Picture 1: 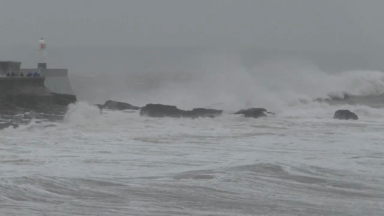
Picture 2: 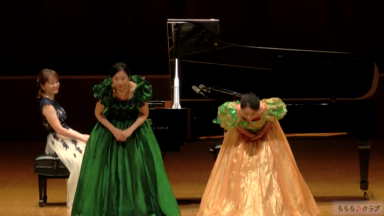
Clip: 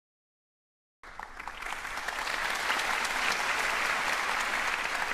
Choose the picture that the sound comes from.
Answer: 2